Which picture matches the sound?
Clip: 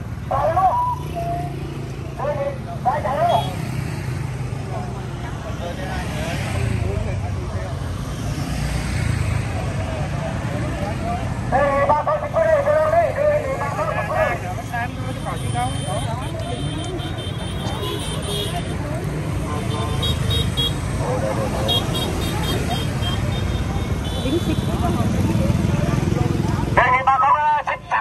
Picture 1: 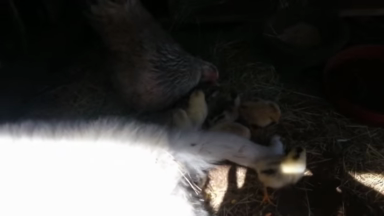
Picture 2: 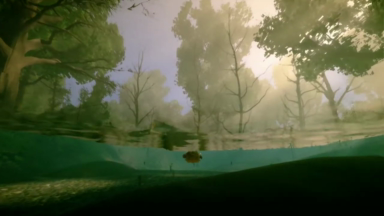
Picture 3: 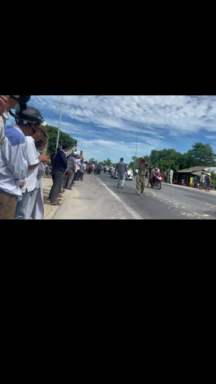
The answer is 3